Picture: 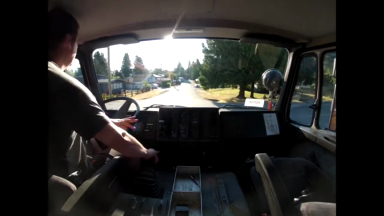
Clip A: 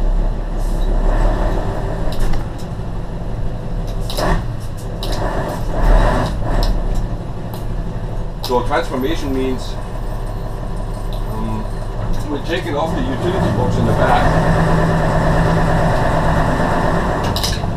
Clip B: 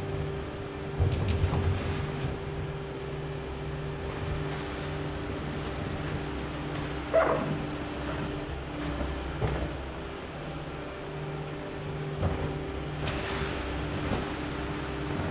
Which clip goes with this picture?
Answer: A